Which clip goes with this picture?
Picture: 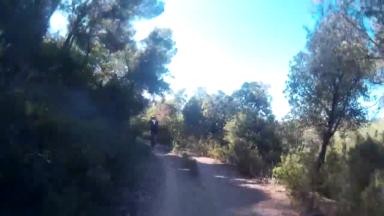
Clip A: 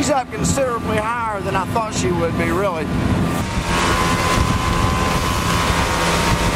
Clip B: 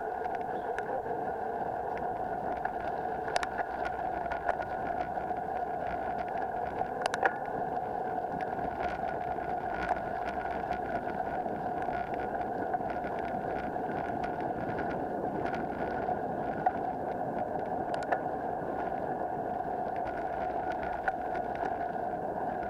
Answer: B